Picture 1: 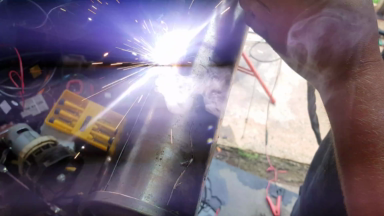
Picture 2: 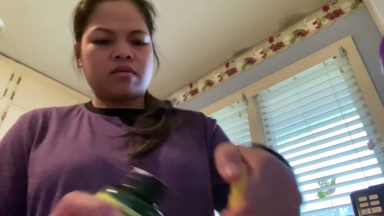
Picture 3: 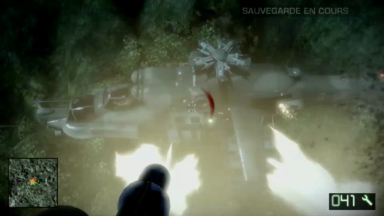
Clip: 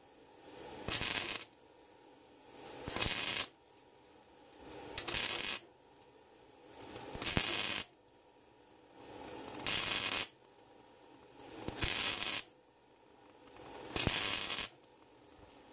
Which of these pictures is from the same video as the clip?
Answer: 1